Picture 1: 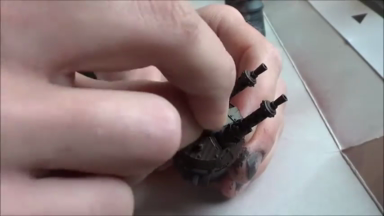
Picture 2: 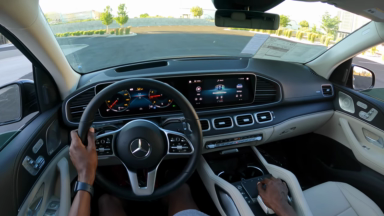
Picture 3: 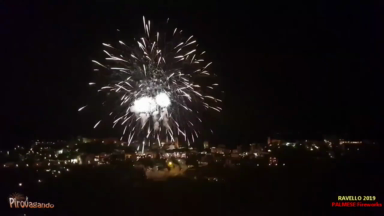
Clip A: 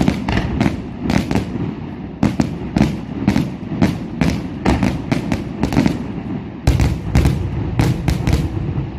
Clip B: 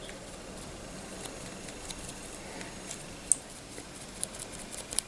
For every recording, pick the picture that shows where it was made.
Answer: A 3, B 1